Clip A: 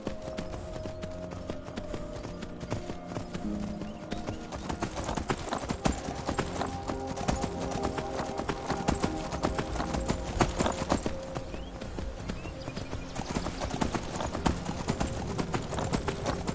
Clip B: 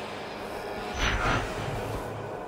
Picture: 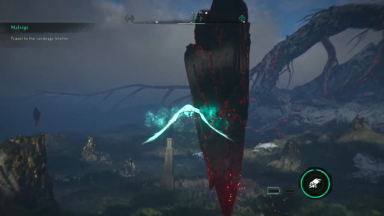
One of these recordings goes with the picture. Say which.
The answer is B